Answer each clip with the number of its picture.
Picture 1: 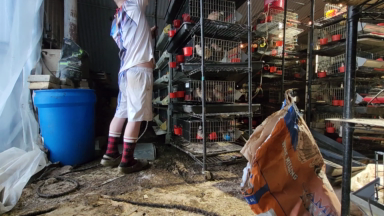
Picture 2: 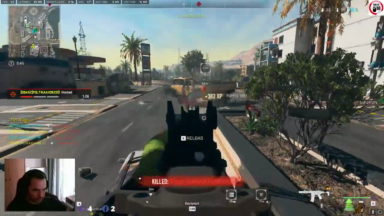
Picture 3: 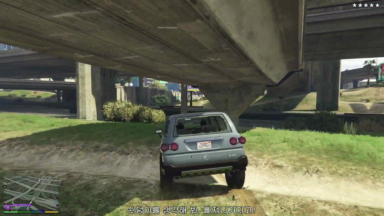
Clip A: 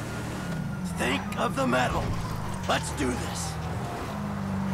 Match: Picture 3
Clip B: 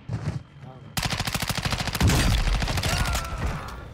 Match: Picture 2